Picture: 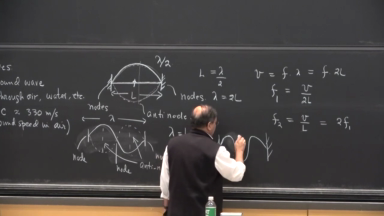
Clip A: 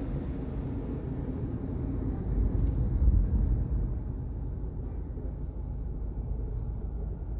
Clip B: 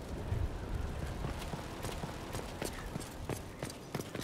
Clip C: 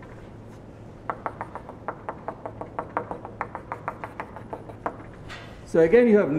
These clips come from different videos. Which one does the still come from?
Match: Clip C